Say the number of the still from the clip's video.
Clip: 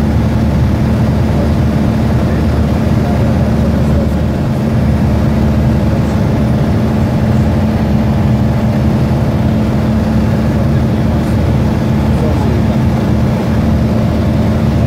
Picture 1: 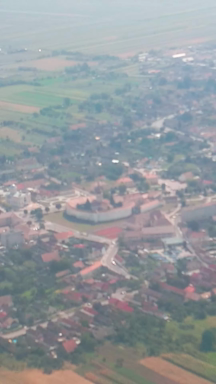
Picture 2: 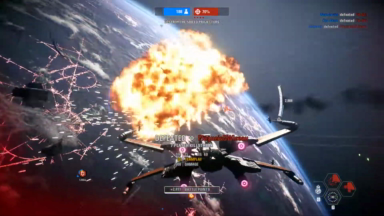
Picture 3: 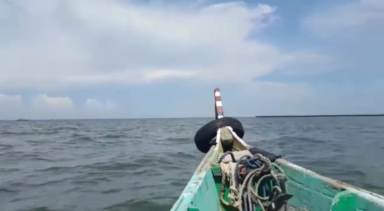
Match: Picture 1